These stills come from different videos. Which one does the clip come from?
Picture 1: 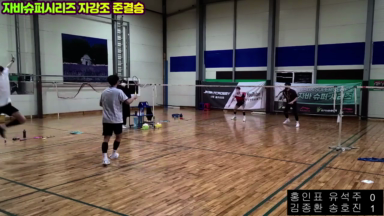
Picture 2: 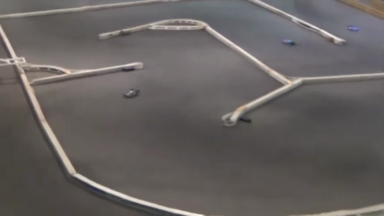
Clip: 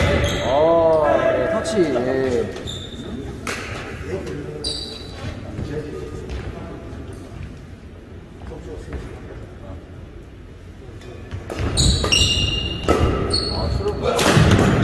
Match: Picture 1